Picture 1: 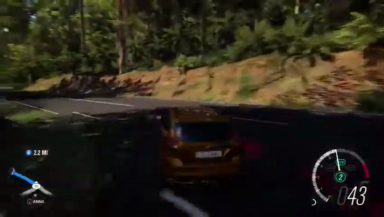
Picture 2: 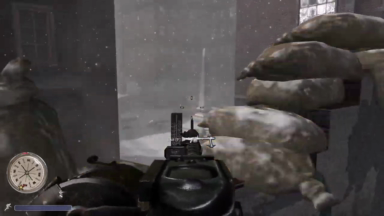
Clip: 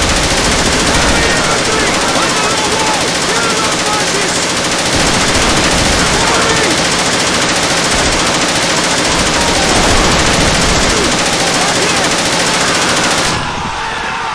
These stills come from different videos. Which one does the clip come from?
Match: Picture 2